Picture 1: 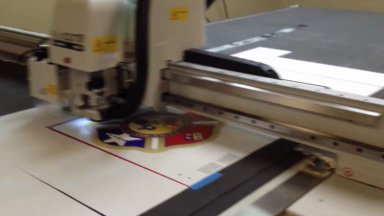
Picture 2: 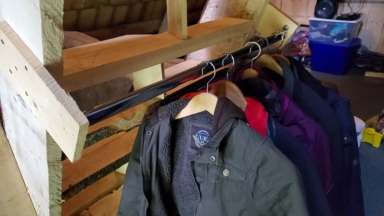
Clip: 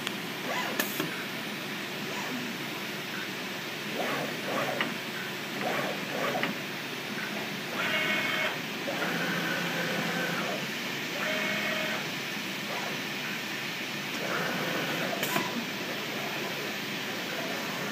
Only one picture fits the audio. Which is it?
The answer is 1